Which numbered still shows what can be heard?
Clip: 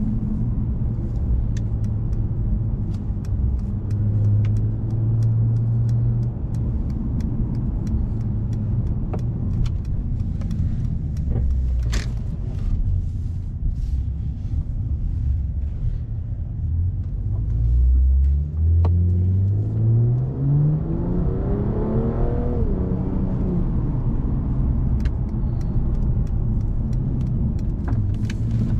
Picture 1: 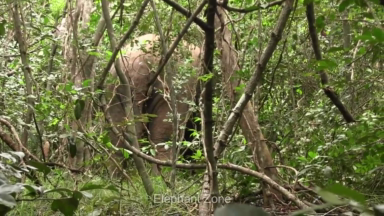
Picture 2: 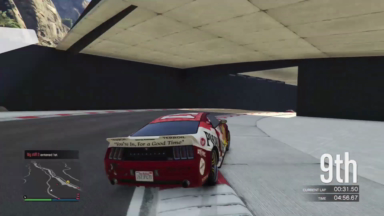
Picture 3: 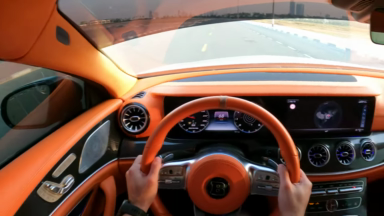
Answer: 3